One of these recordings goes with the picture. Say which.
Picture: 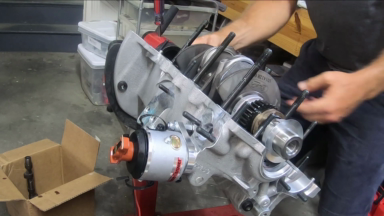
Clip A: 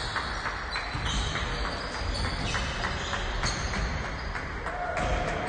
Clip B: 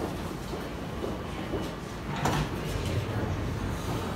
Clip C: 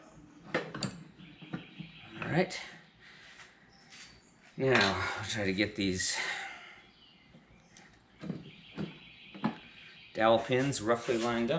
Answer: C